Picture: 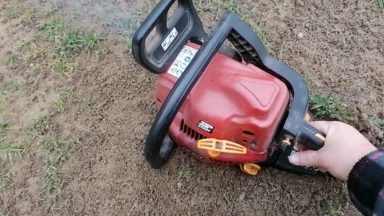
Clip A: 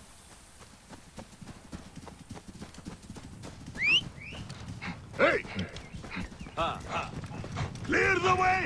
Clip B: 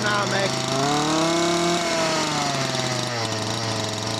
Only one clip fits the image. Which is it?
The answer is B